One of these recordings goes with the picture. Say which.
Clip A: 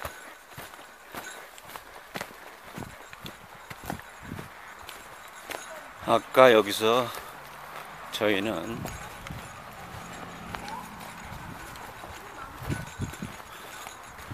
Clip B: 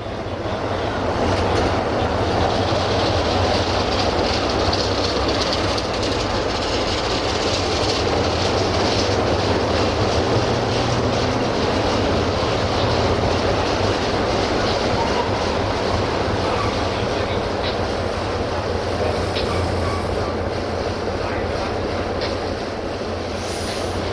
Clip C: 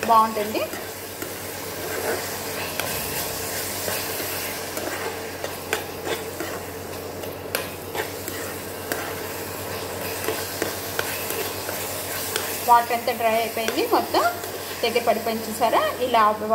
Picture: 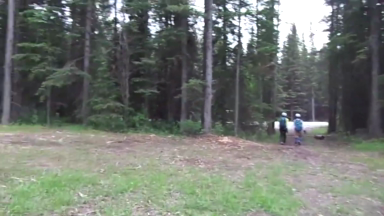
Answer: A